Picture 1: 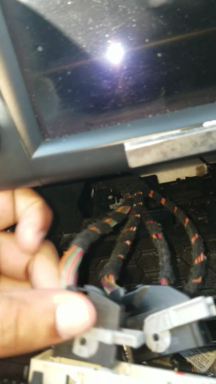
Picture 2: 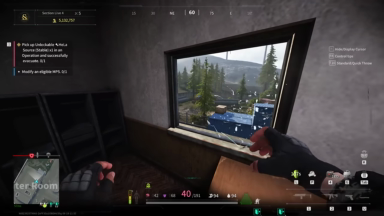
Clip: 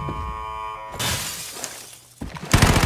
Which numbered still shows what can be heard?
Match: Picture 2